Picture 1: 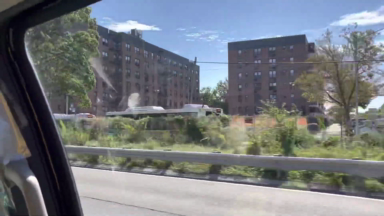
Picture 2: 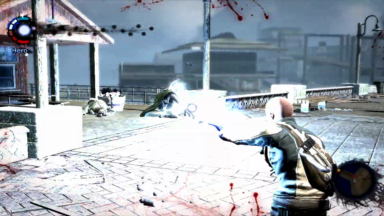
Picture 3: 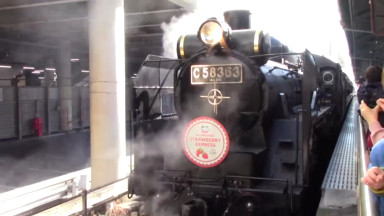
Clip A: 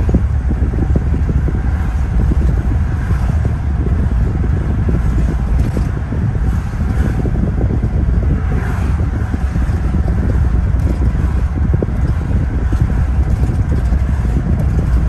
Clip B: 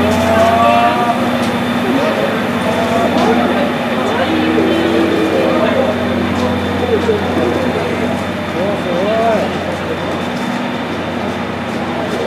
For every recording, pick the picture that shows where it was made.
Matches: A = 1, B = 3